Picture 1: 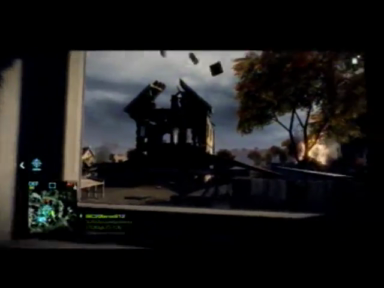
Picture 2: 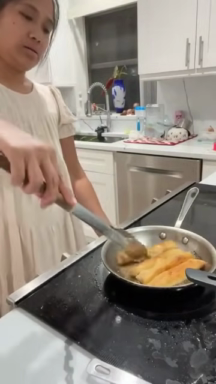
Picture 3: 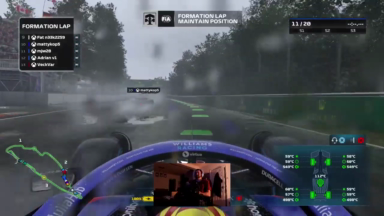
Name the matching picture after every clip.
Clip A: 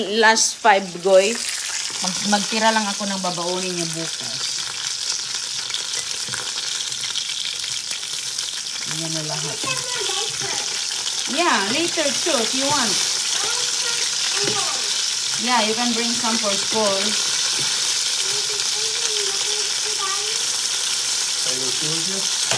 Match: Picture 2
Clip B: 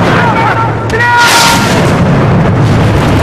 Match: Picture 1